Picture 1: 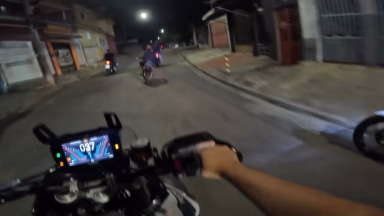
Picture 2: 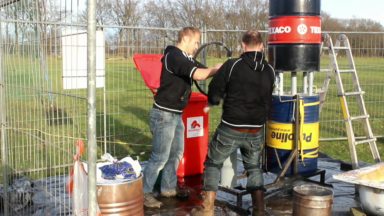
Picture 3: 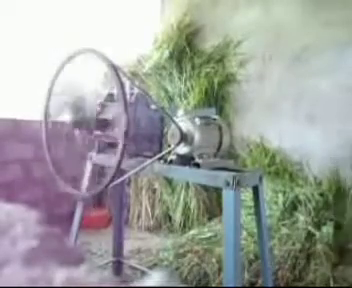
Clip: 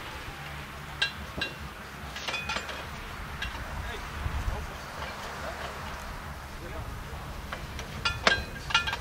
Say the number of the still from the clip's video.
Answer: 2